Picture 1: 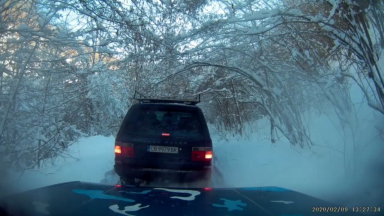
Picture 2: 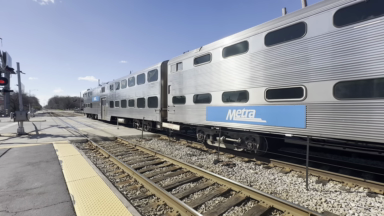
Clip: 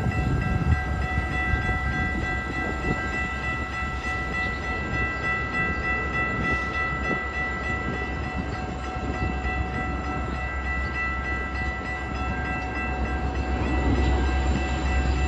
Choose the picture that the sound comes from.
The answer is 2